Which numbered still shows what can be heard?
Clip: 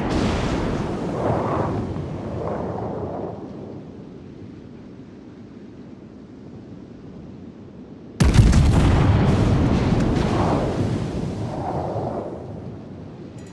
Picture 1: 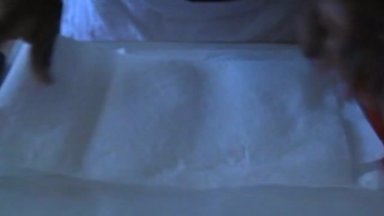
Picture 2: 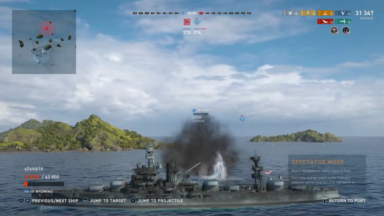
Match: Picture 2